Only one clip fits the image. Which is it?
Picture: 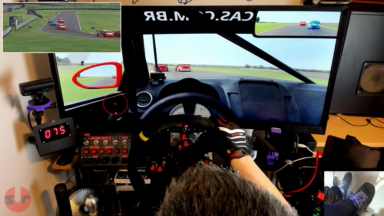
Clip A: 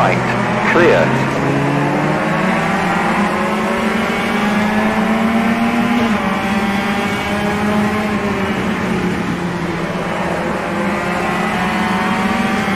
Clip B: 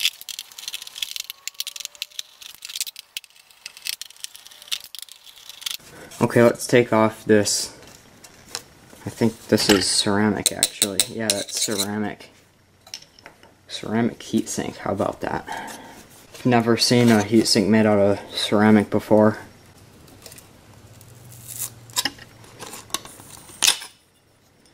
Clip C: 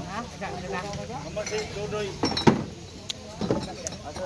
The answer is A